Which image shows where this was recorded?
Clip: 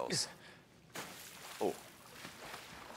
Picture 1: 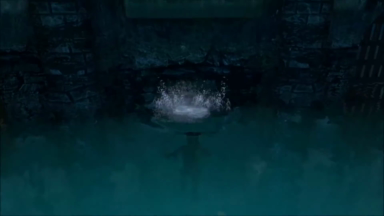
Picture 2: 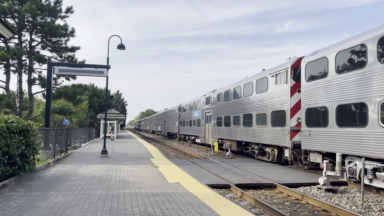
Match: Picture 1